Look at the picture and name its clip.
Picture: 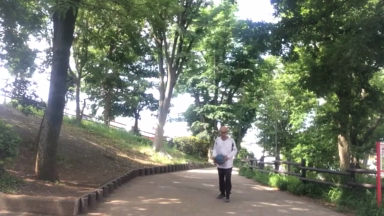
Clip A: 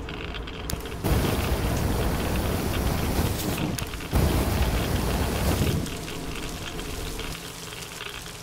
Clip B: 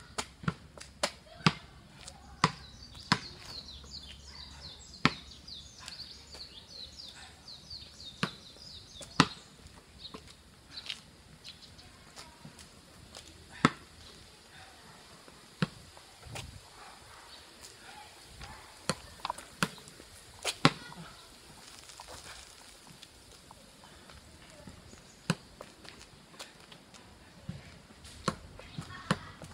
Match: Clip B